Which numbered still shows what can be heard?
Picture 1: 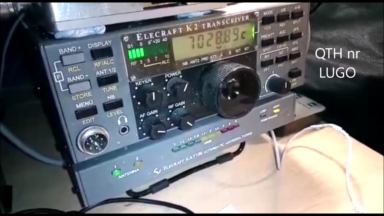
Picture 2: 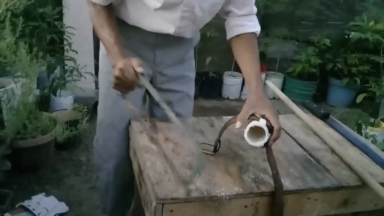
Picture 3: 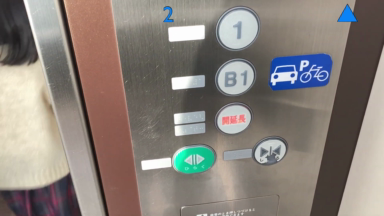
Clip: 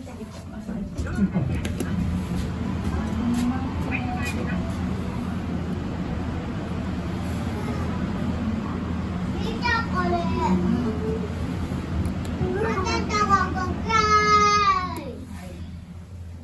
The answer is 3